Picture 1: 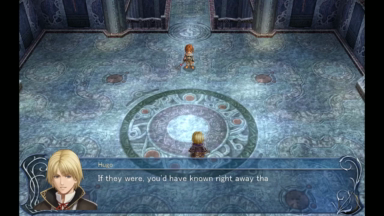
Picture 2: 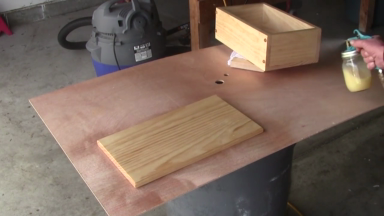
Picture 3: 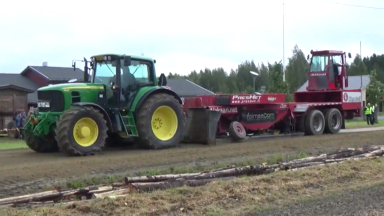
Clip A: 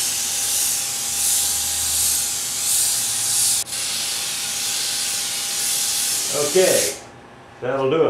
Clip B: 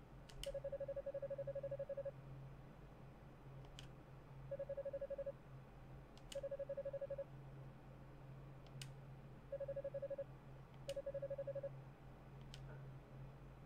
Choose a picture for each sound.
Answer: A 2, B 1